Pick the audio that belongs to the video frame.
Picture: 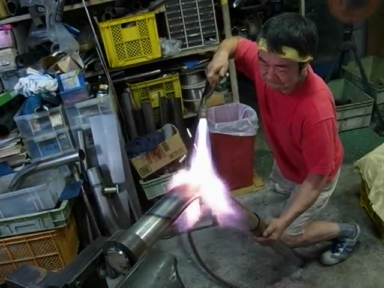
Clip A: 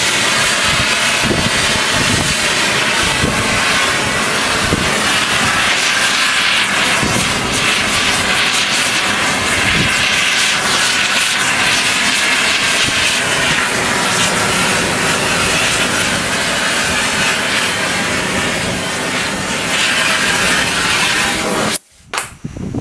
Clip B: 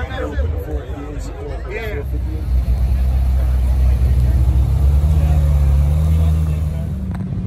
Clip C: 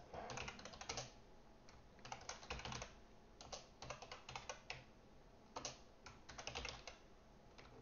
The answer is A